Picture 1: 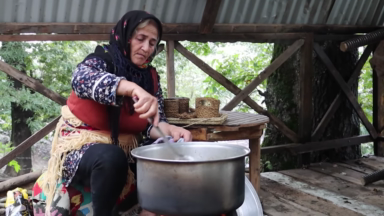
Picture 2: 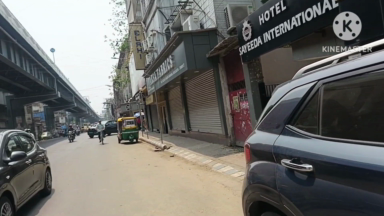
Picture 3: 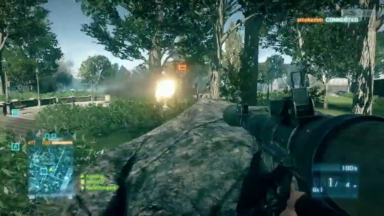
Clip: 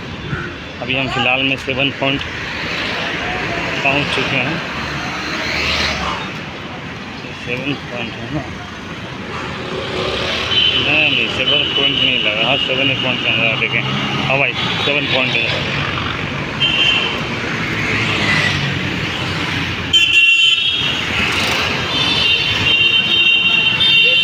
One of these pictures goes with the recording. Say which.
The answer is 2